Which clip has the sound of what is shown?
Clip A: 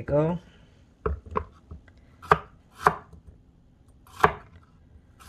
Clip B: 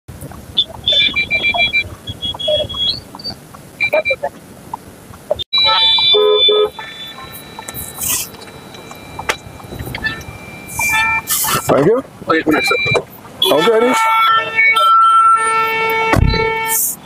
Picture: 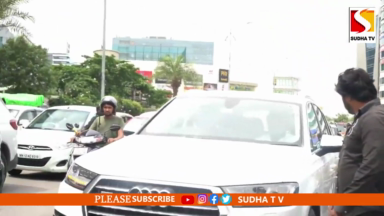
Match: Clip B